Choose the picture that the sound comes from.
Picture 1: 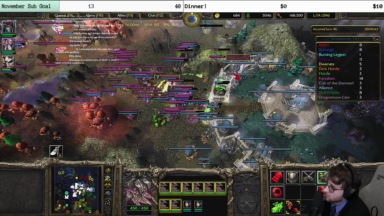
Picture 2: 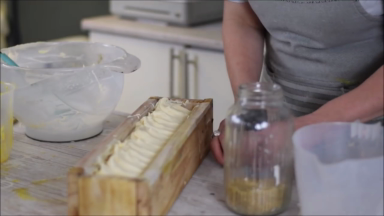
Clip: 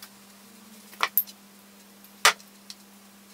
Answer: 2